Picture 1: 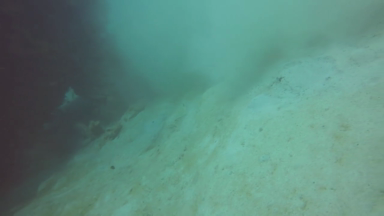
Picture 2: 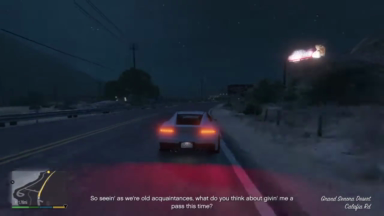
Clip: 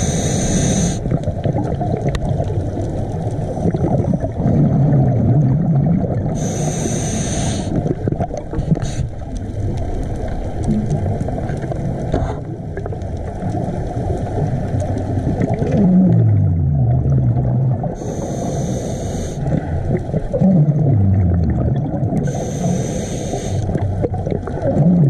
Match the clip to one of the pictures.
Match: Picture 1